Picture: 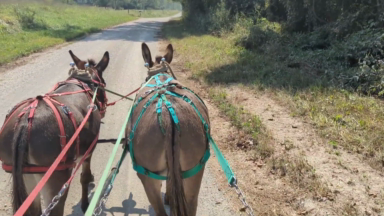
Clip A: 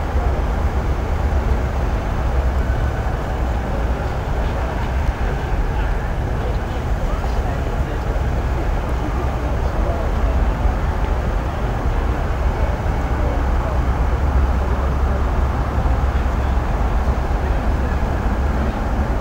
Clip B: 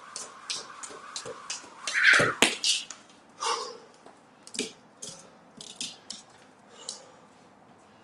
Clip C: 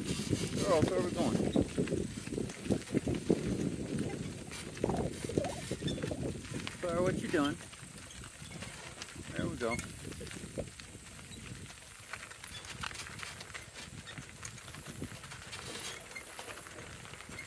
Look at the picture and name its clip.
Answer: C